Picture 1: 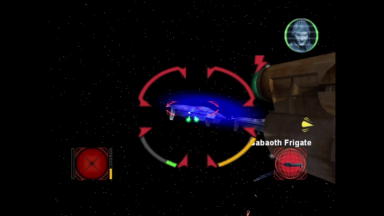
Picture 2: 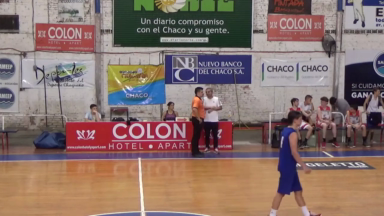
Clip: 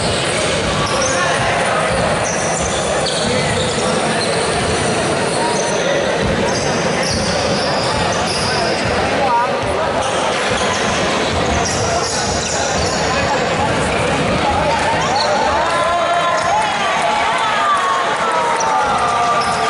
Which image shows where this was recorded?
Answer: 2